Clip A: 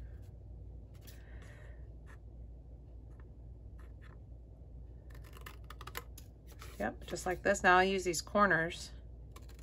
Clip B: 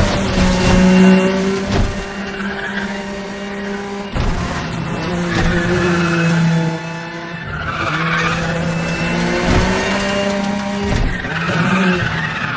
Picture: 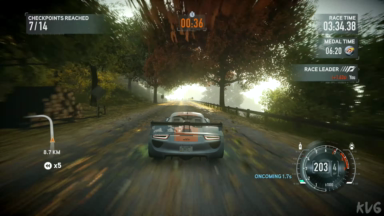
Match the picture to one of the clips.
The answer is B